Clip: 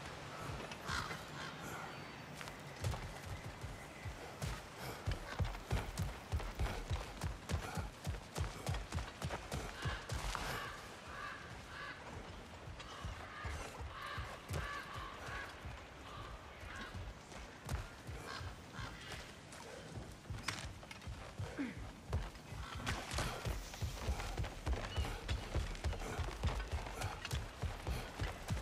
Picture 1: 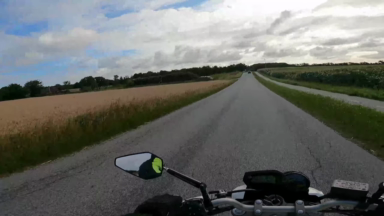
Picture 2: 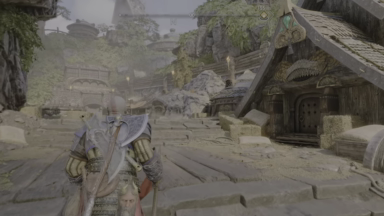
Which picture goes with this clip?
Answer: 2